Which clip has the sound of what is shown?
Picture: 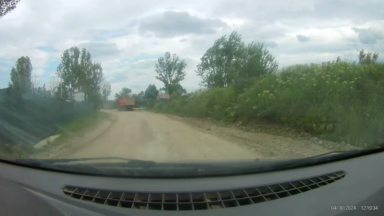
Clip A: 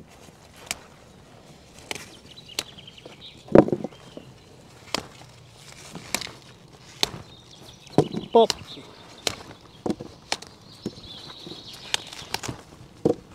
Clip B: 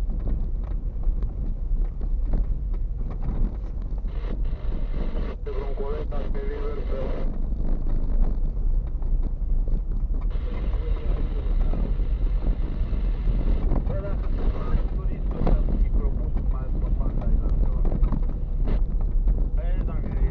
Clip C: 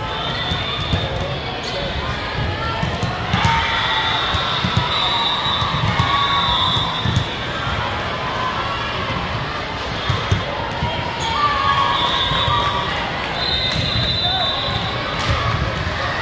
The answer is B